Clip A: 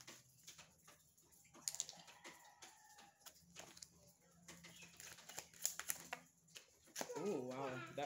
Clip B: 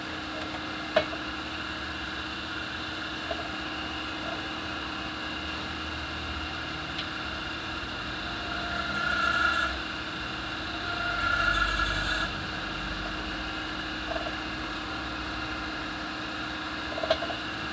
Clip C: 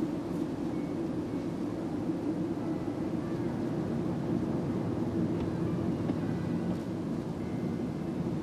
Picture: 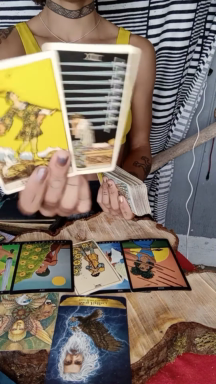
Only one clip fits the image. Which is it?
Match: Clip A